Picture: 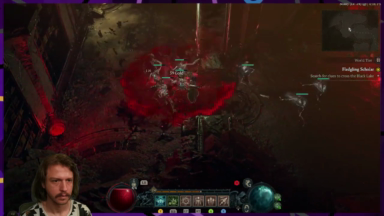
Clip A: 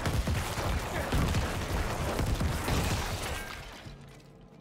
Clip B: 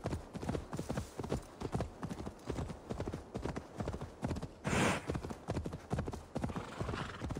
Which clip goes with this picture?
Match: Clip A